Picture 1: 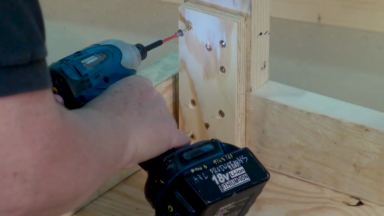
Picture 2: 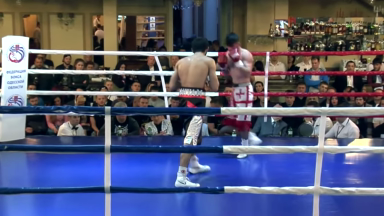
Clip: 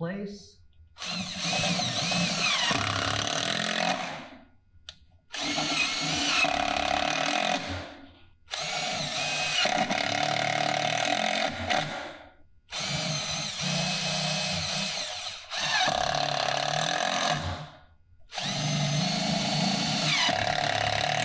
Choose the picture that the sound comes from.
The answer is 1